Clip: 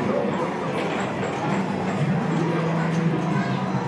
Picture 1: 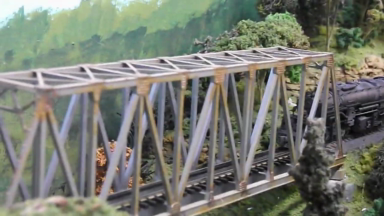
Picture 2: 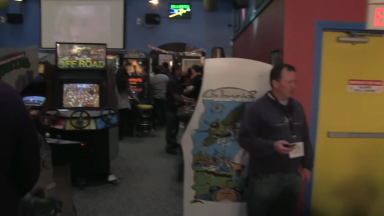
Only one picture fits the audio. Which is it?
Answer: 2